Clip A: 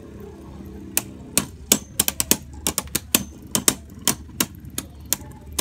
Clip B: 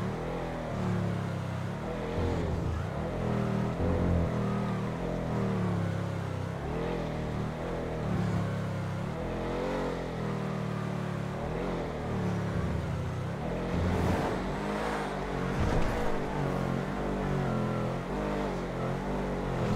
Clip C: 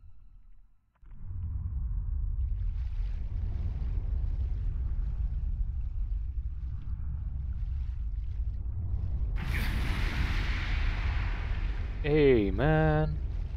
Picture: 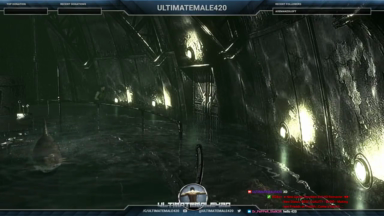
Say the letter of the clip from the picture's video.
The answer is C